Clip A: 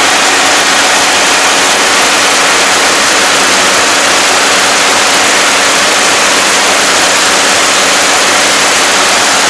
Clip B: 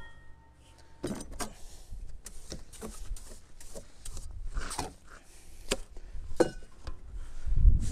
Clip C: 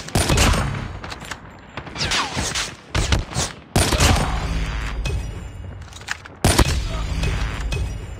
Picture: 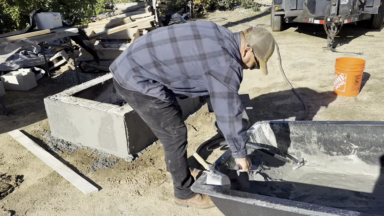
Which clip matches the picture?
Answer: B